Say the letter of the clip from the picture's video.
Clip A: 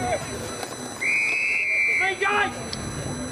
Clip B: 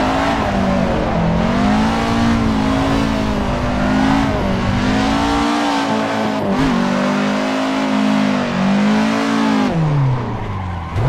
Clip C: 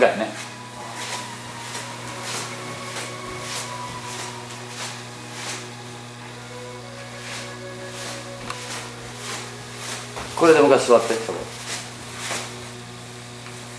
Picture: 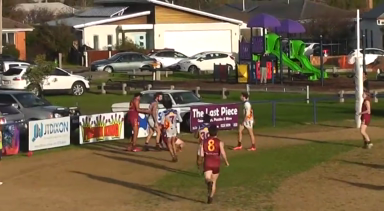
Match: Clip A